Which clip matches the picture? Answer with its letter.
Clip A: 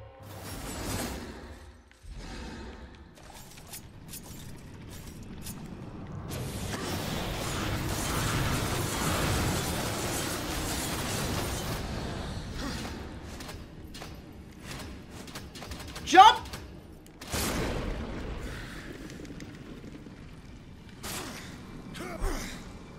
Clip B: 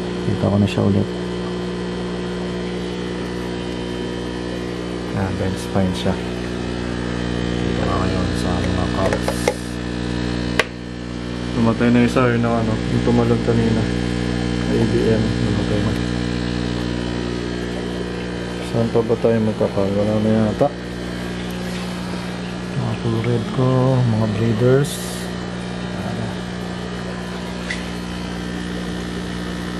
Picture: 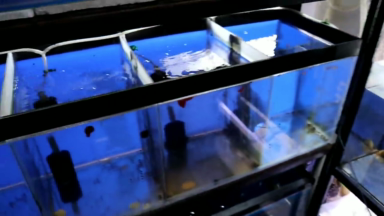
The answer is B